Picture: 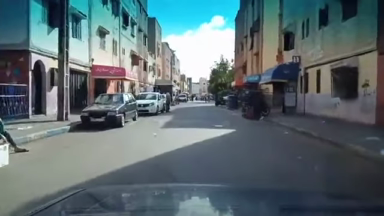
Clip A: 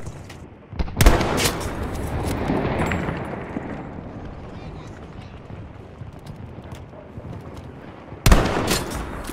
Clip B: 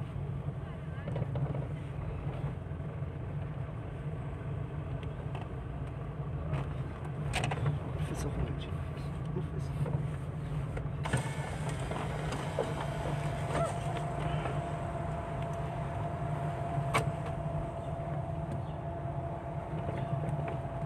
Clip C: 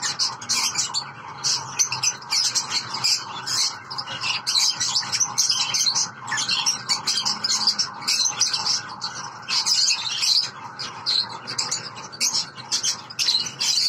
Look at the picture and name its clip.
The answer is B